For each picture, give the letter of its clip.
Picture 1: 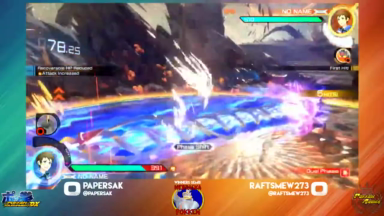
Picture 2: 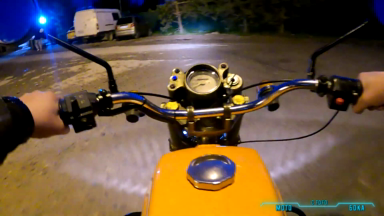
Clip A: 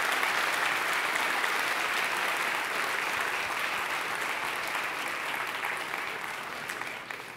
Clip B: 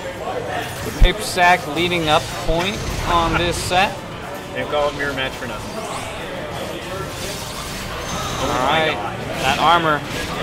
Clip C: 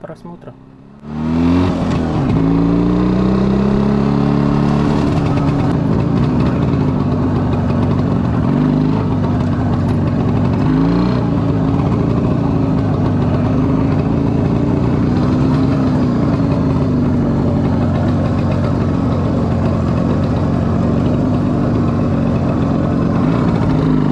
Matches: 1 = B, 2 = C